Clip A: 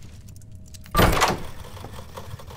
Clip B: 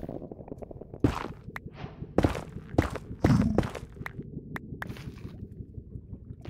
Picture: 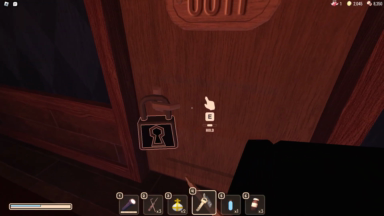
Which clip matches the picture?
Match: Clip A